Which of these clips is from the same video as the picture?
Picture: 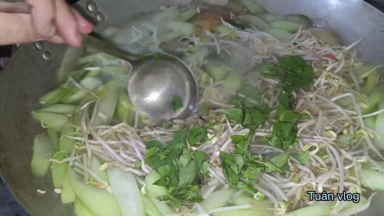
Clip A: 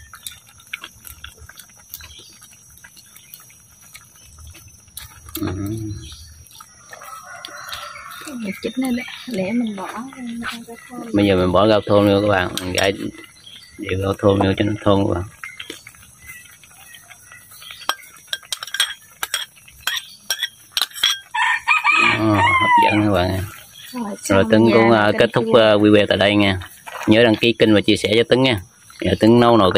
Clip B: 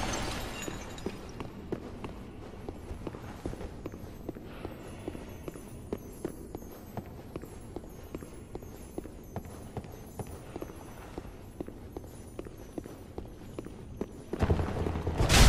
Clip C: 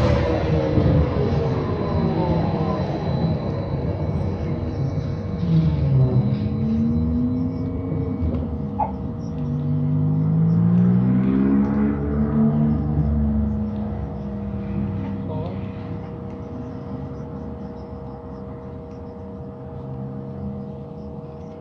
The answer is A